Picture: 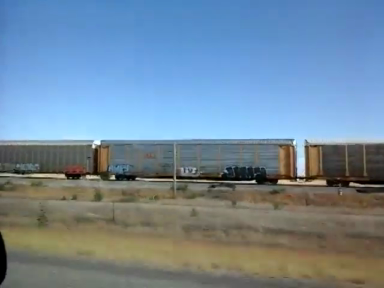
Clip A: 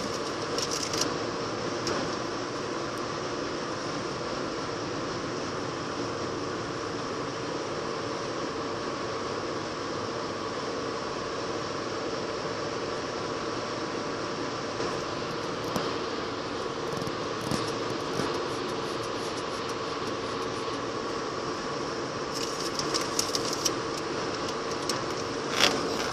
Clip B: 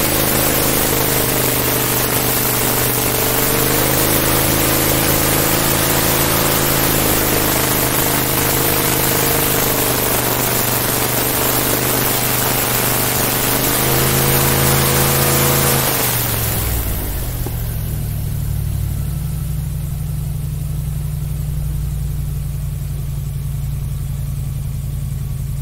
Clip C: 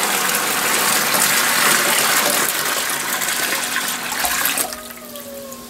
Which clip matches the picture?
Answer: A